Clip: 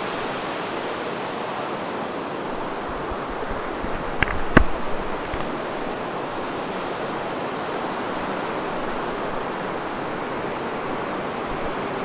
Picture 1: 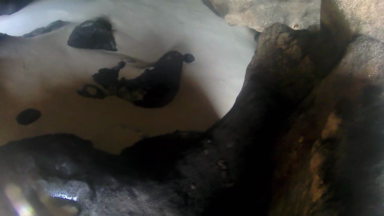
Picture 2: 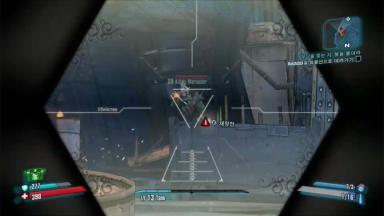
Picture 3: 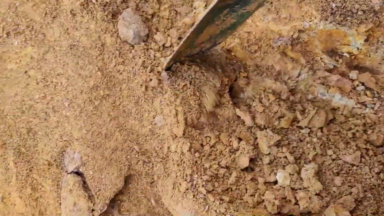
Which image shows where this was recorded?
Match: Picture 1